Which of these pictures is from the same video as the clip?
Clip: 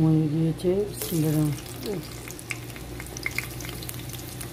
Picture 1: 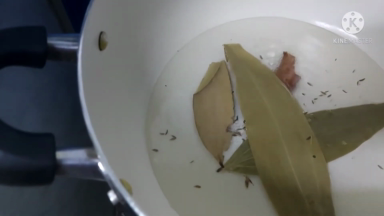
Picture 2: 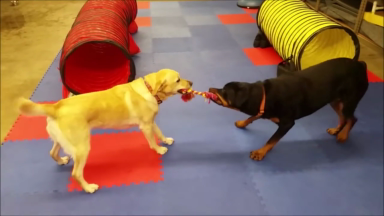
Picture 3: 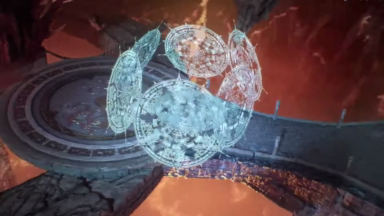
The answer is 1